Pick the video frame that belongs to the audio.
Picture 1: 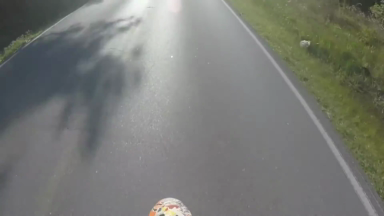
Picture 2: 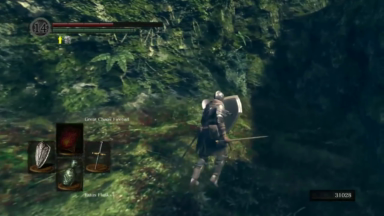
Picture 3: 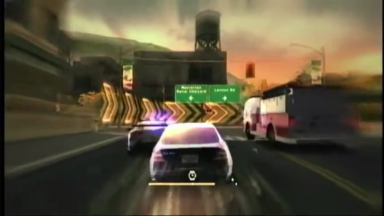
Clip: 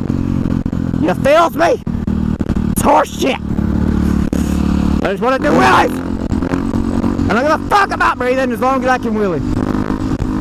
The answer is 1